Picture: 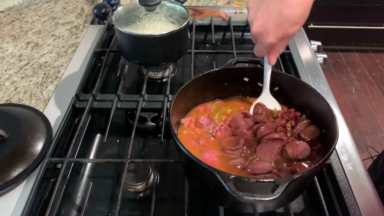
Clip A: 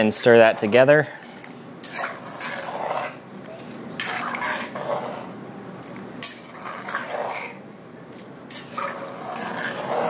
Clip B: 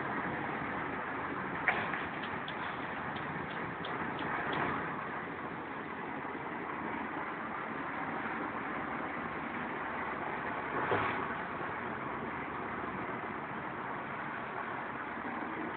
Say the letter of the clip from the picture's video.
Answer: A